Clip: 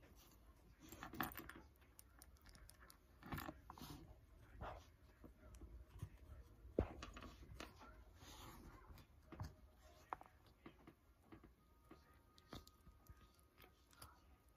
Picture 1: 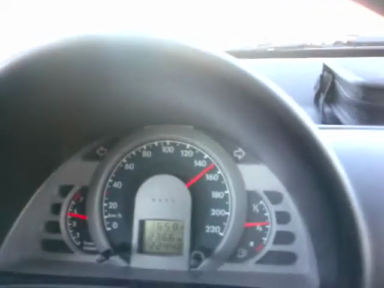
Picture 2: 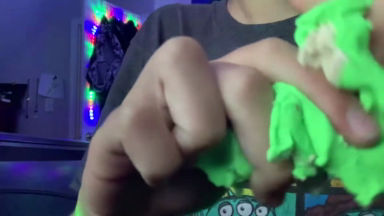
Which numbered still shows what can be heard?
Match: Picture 2